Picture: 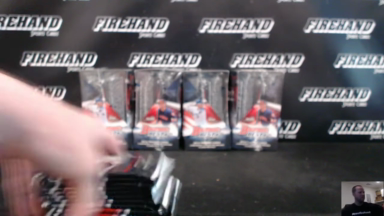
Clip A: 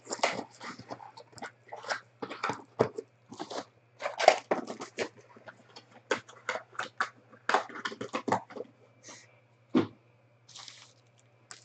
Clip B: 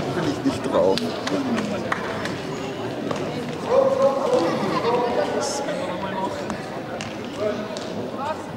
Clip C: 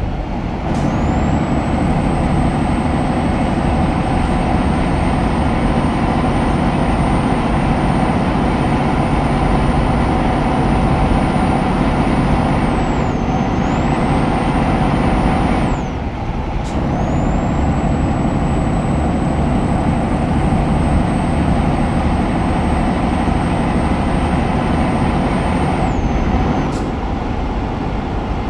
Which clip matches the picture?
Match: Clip A